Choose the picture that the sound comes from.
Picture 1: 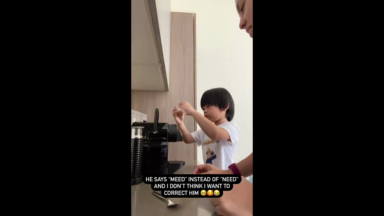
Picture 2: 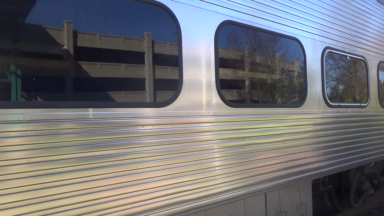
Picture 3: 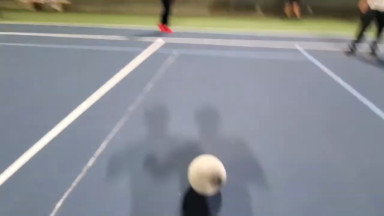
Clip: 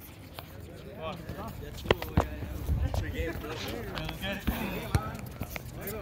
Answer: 3